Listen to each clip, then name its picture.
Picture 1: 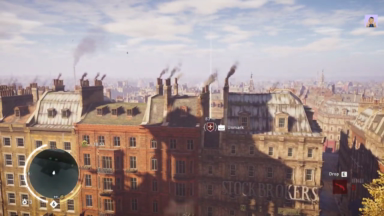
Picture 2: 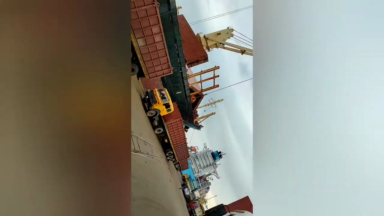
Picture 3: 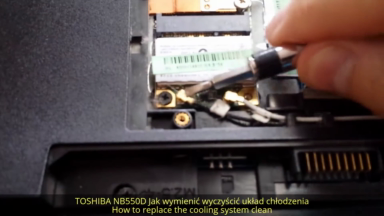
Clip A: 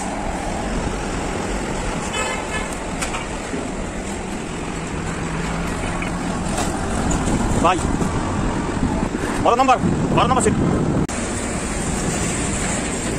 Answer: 2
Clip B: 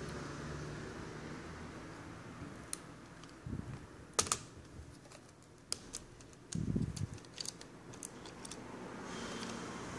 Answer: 3